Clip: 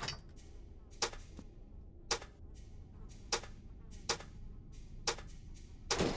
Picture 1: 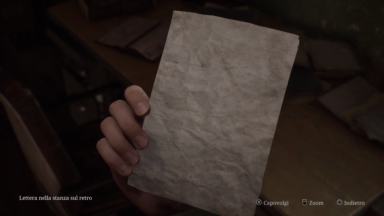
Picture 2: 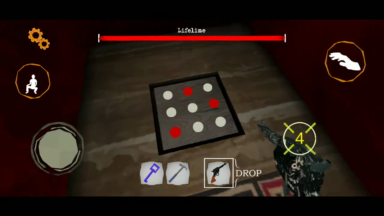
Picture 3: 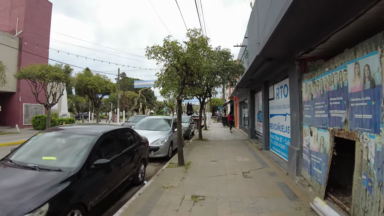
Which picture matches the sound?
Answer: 2